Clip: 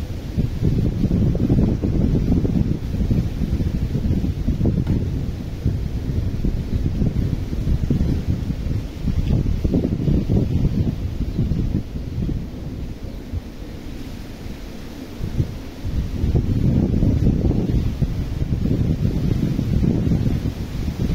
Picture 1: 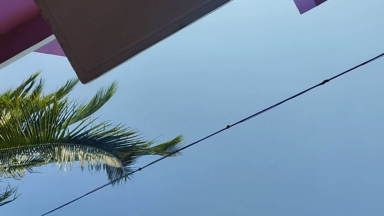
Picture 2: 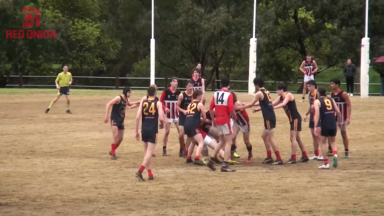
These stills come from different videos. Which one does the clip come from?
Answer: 1